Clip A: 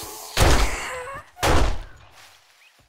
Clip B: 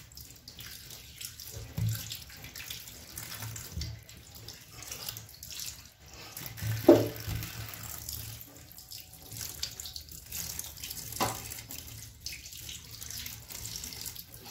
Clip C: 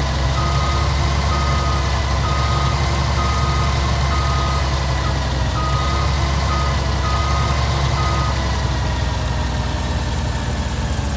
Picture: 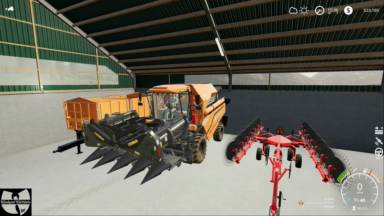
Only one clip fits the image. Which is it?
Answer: C